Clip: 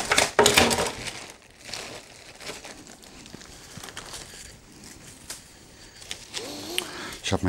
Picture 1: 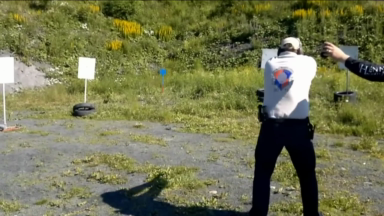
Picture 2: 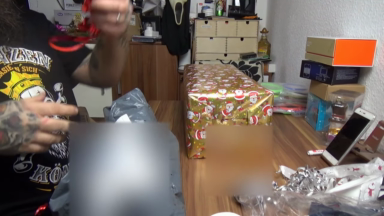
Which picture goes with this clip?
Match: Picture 2